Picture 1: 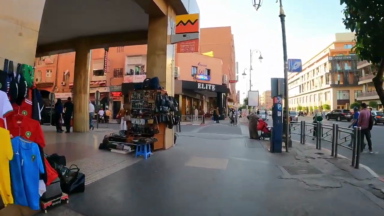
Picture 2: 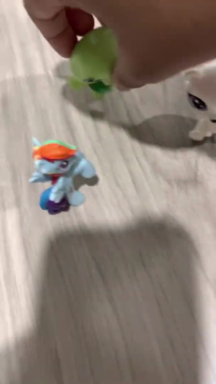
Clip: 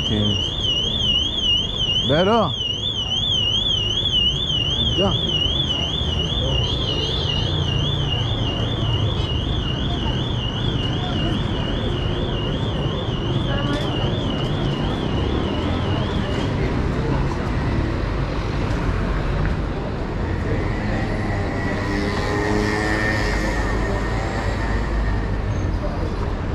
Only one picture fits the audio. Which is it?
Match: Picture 1